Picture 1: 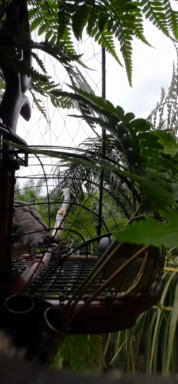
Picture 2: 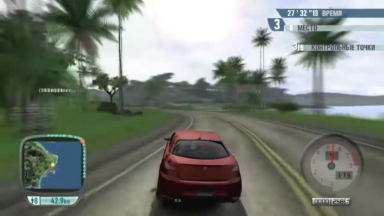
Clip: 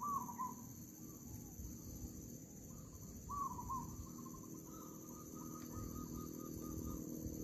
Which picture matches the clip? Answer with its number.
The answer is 1